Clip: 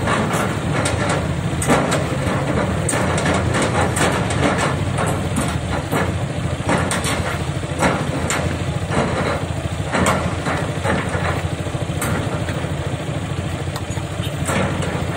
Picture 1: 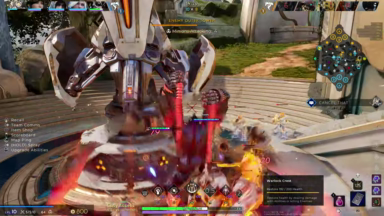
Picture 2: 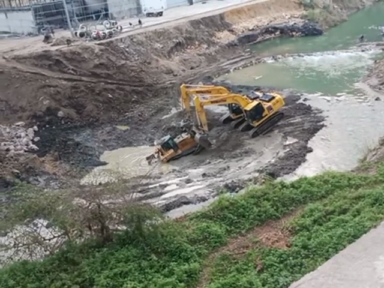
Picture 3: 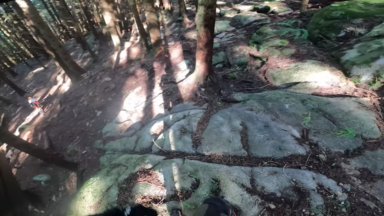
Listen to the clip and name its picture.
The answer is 2